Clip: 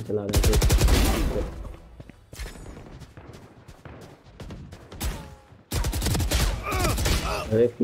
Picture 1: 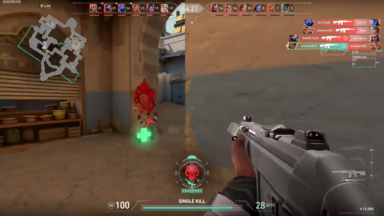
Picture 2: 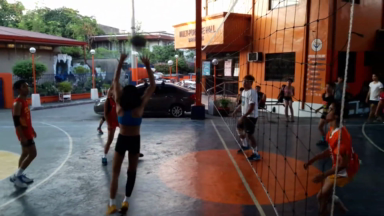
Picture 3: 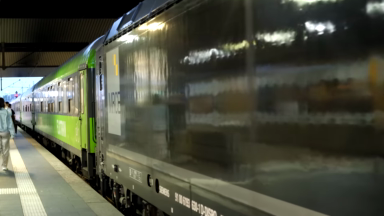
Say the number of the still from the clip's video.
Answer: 1